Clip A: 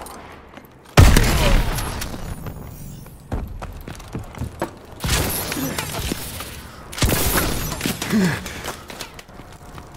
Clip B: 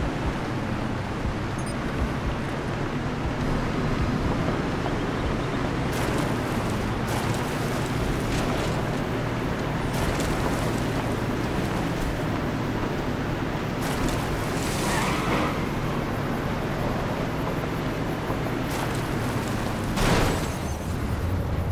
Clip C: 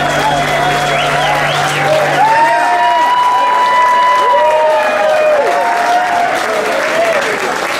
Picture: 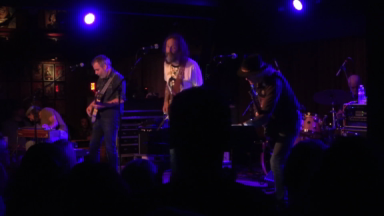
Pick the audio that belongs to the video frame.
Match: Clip C